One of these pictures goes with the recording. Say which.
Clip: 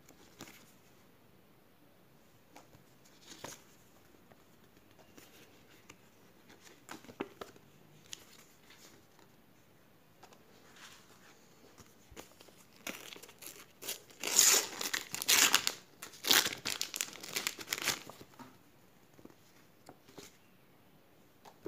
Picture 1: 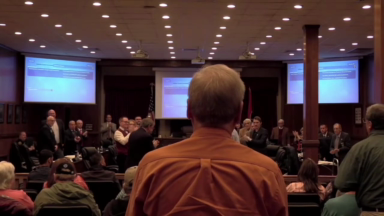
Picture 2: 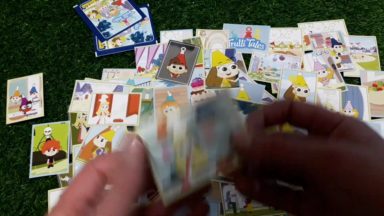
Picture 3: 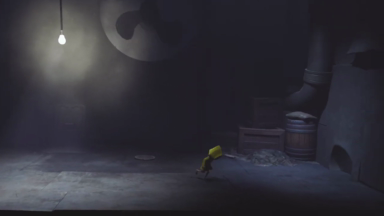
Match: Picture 2